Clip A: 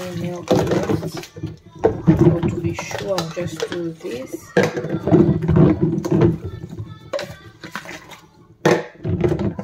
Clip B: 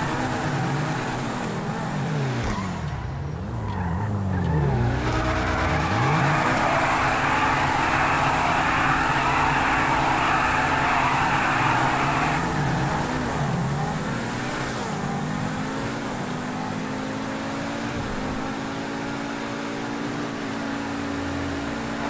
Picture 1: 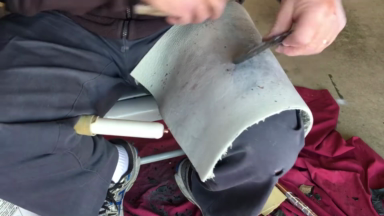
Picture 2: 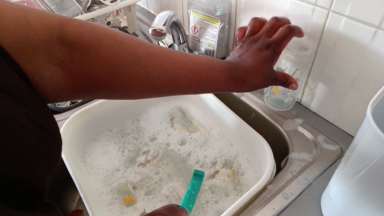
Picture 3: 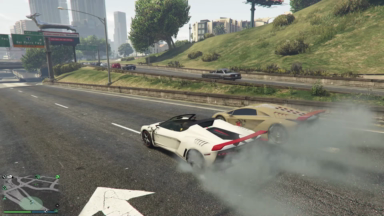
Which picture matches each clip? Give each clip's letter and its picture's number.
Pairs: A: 2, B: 3